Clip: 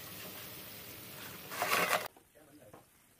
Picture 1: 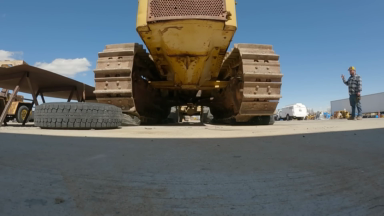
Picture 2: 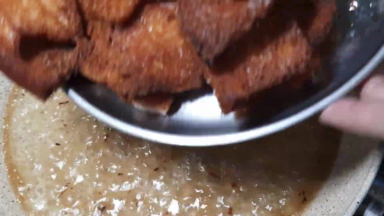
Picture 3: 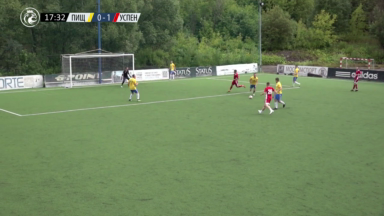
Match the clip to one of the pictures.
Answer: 2